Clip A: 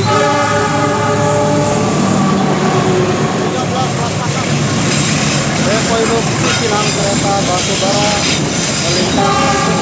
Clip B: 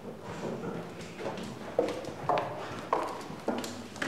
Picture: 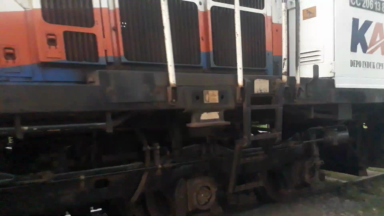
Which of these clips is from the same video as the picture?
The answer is A